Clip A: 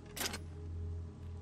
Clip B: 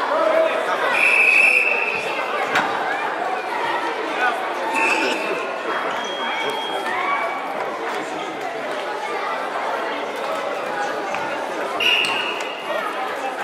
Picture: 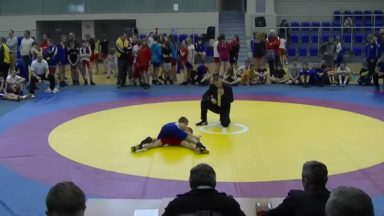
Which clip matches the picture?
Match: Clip B